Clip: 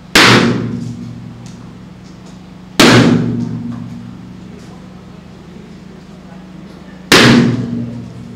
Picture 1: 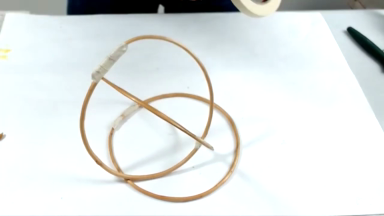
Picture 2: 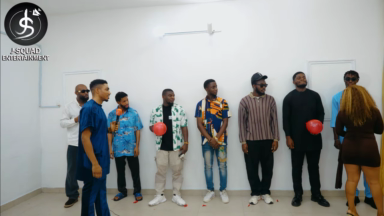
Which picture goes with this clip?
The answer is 2